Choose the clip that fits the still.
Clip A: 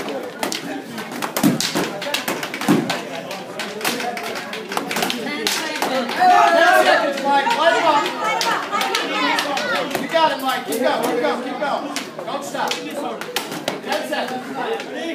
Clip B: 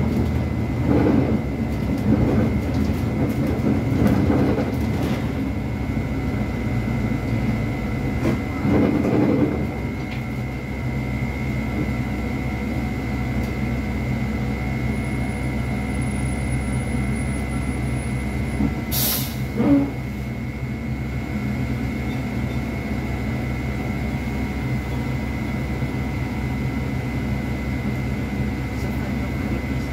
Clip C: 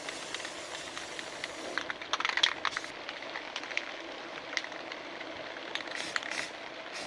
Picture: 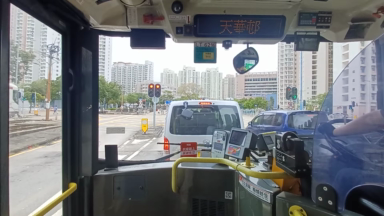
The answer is B